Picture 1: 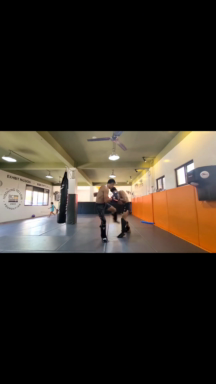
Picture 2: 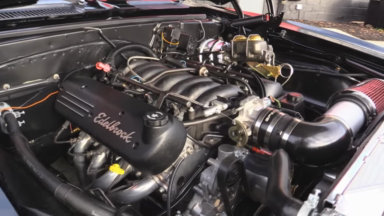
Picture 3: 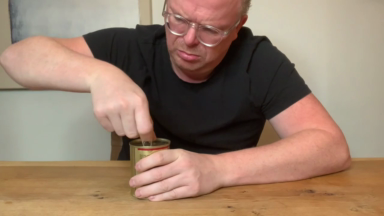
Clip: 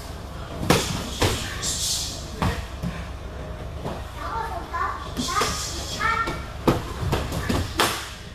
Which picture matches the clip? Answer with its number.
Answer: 1